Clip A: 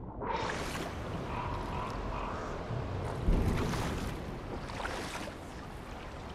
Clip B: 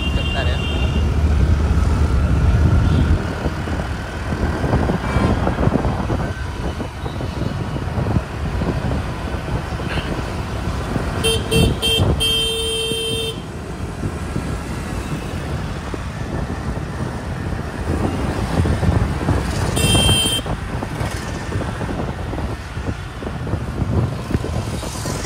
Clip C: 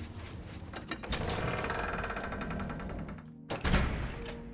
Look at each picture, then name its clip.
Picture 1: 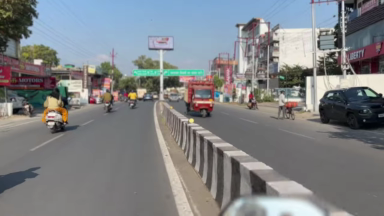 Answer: B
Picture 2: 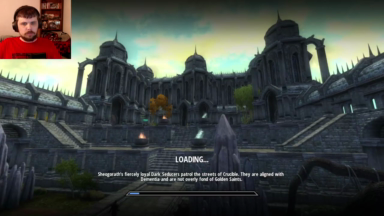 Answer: C